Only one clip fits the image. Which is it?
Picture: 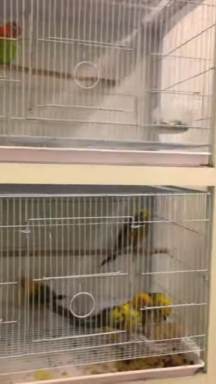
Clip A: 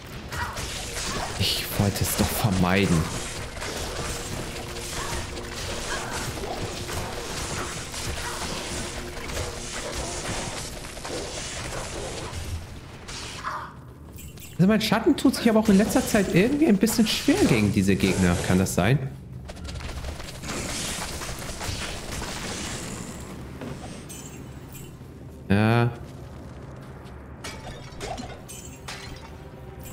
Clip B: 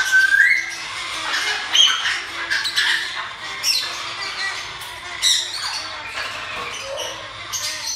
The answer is B